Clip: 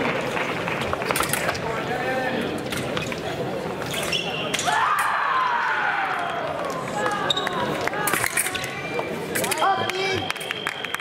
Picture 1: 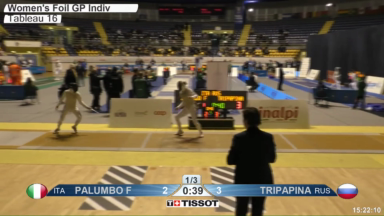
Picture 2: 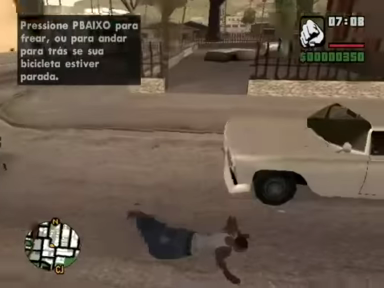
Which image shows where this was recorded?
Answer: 1